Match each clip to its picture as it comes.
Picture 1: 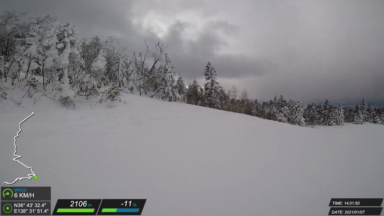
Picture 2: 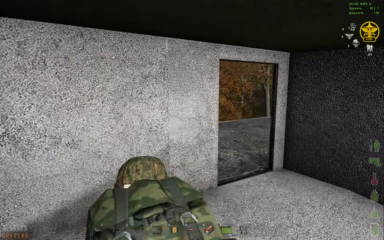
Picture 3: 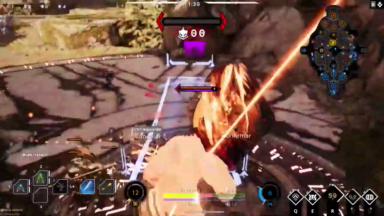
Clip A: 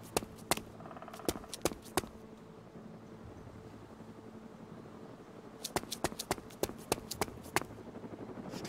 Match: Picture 2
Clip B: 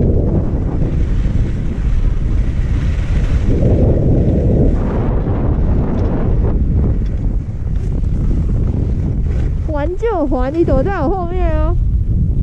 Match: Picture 1